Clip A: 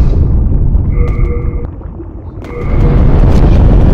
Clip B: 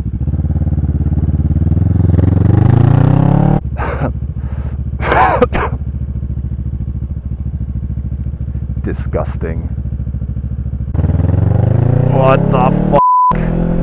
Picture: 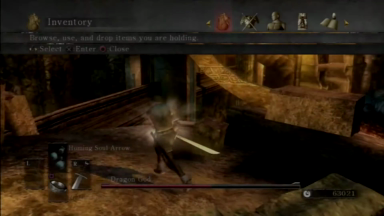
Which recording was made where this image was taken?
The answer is A